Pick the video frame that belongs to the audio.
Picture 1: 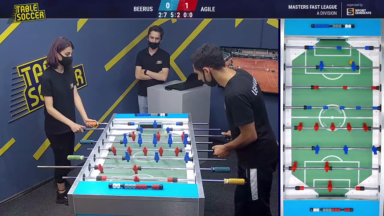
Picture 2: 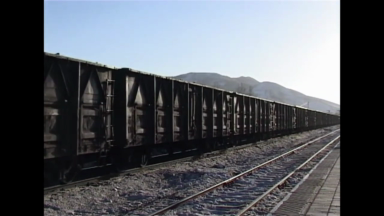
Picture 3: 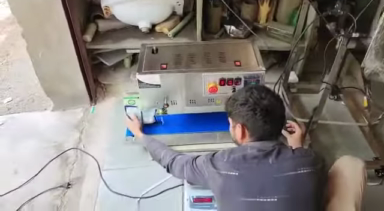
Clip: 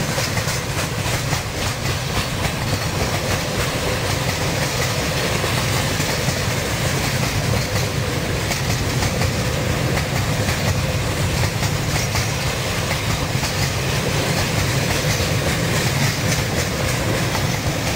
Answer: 2